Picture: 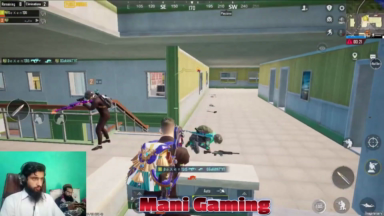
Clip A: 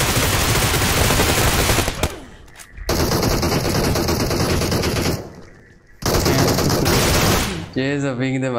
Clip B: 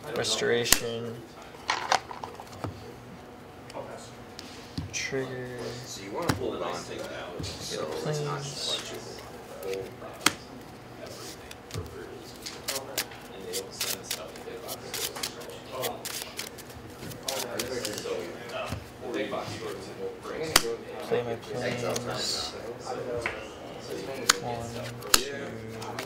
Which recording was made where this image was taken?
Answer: A